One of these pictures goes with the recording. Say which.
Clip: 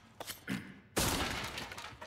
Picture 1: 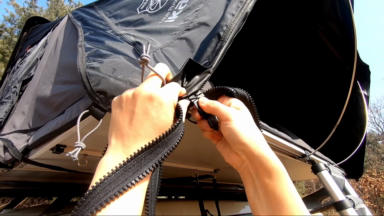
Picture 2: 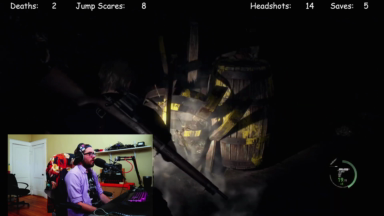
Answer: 2